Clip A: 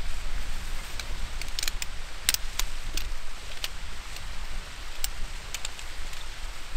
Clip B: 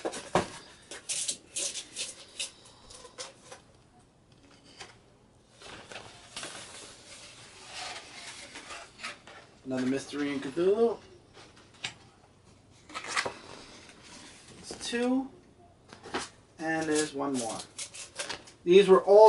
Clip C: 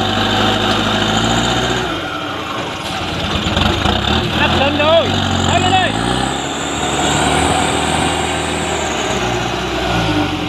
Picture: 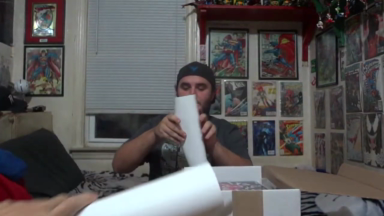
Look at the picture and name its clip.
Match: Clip B